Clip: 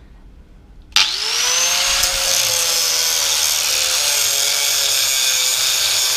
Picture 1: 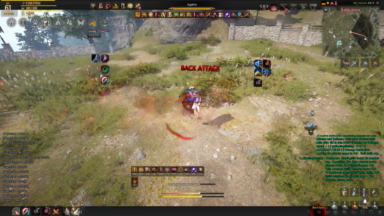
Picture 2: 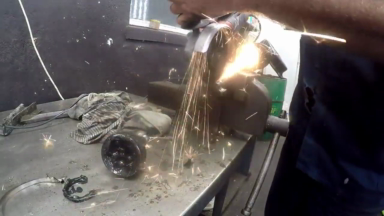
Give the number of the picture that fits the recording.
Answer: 2